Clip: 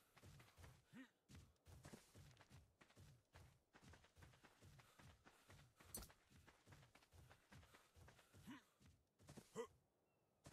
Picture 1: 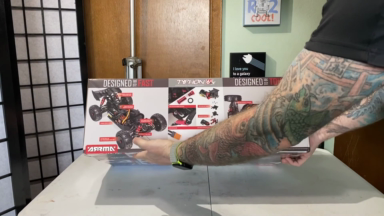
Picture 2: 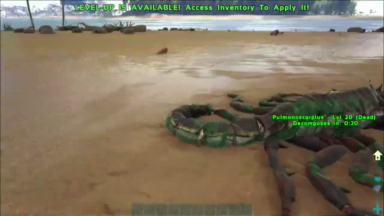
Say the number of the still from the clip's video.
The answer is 2